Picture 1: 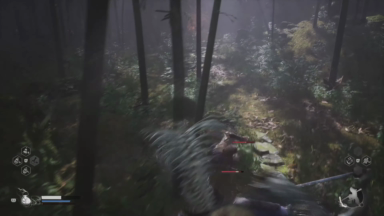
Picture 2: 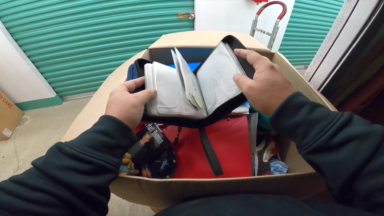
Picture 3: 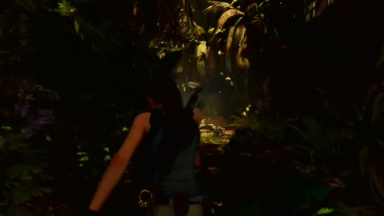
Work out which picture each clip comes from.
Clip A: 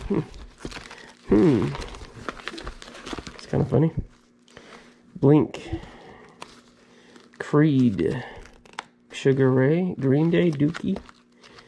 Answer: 2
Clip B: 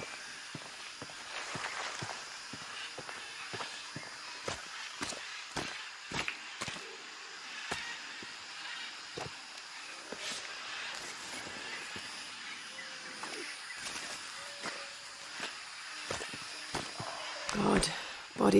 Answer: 3